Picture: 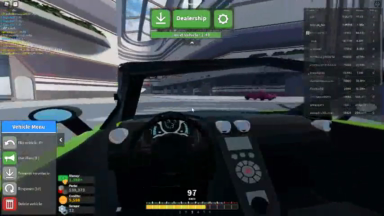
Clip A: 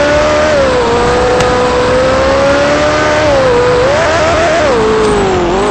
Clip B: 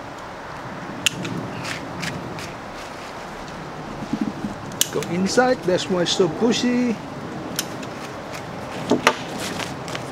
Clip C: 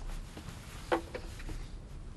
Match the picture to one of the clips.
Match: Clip A